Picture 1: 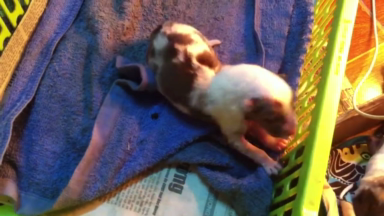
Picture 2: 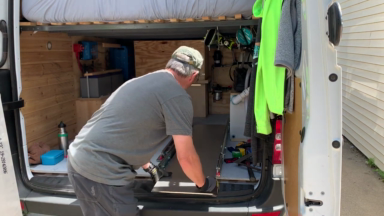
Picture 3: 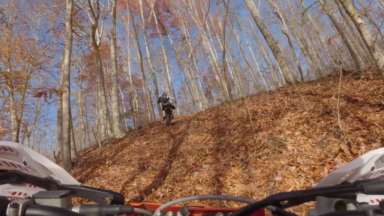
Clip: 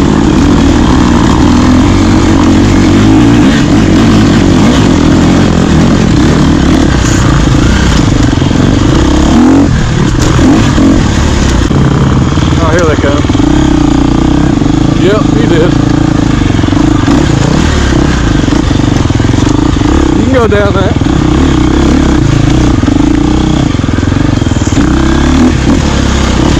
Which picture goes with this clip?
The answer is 3